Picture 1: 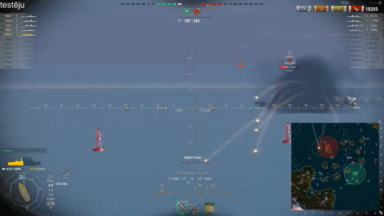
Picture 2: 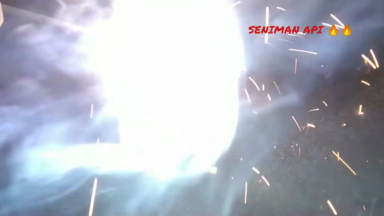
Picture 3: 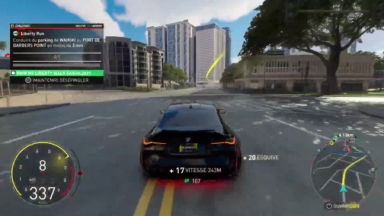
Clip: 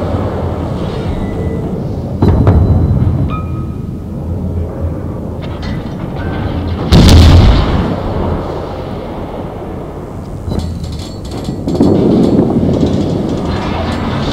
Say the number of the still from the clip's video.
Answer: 1